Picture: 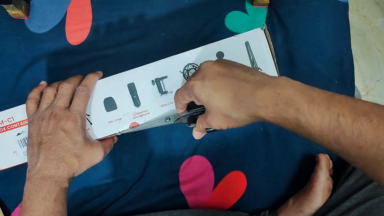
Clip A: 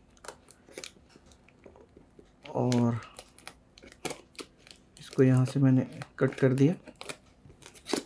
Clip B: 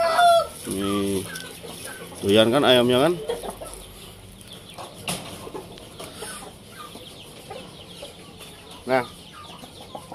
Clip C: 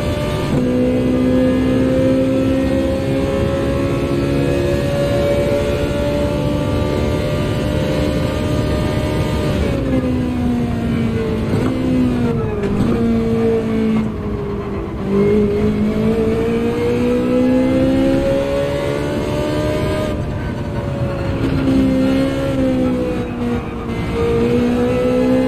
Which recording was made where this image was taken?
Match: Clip A